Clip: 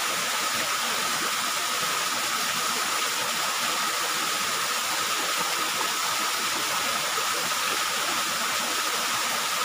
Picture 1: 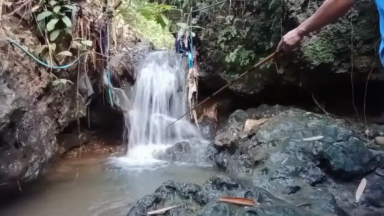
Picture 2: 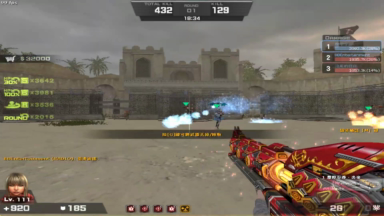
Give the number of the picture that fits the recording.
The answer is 1